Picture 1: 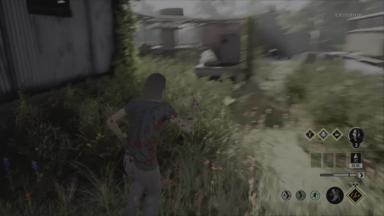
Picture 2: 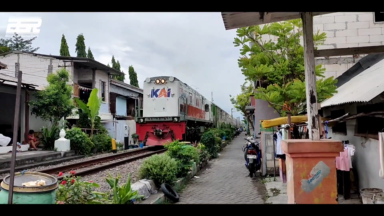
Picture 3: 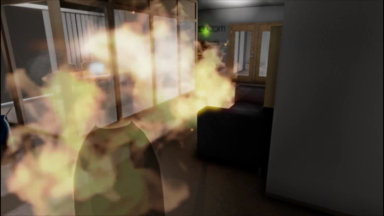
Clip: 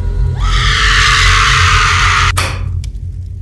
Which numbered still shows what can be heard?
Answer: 3